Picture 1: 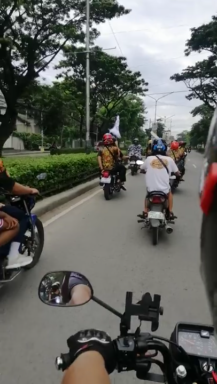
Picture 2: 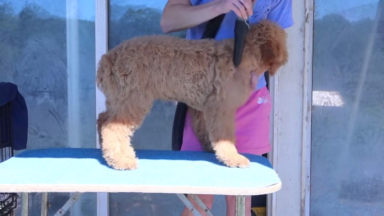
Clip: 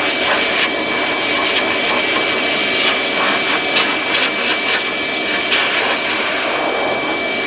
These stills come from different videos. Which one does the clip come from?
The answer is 2